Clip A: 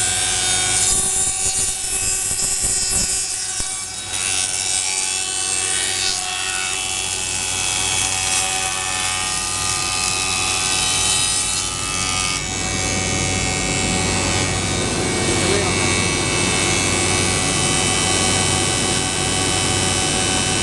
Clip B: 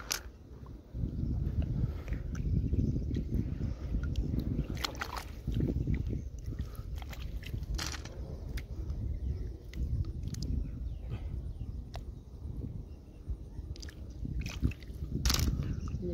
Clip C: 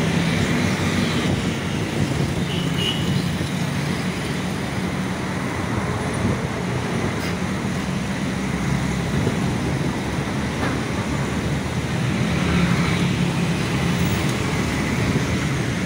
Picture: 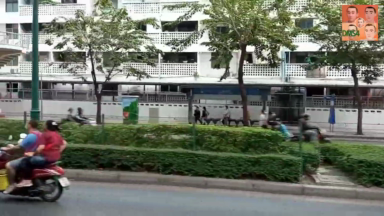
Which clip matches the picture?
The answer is C